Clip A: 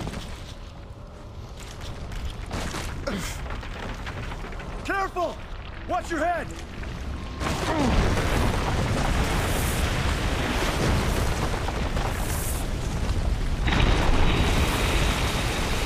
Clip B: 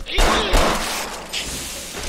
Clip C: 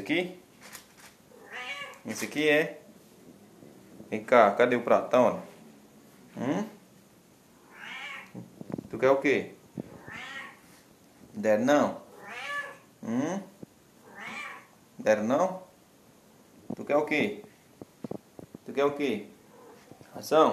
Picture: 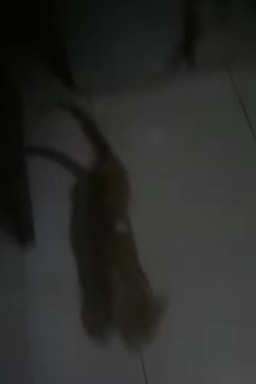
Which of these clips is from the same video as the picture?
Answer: C